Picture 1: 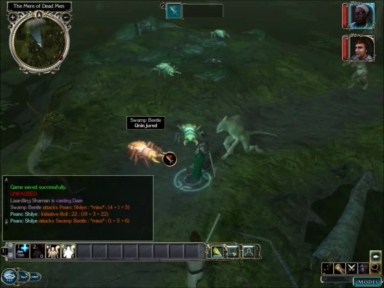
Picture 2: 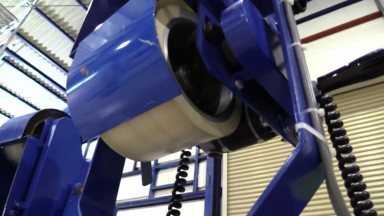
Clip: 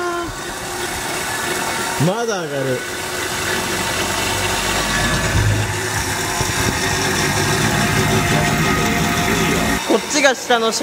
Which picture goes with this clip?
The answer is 2